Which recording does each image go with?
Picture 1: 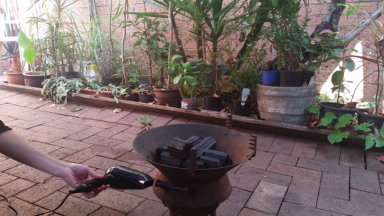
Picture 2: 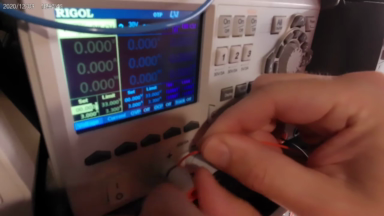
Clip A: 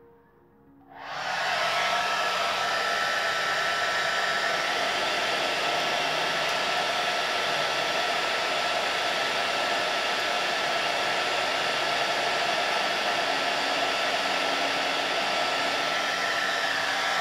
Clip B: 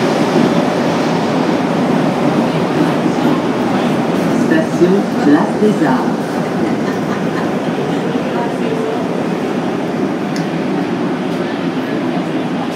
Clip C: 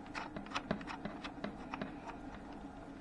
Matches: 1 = A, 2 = C